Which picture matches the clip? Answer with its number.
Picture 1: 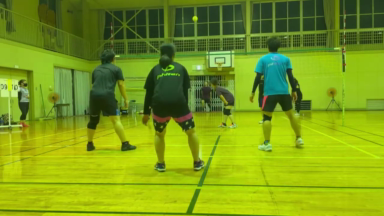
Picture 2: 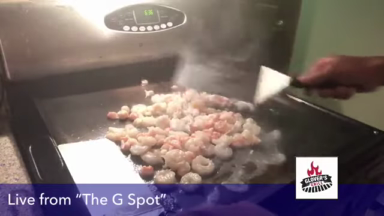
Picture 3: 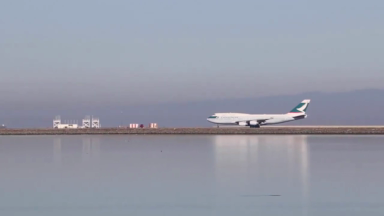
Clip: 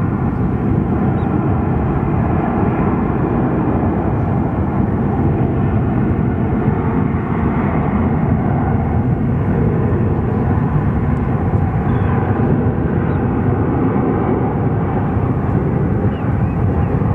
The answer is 3